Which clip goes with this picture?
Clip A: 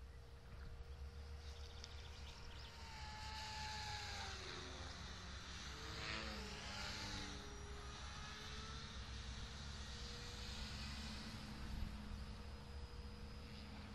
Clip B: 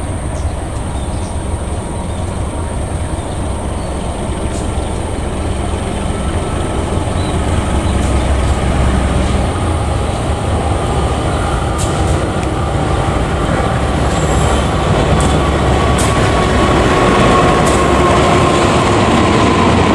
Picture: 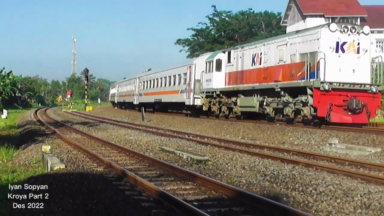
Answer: B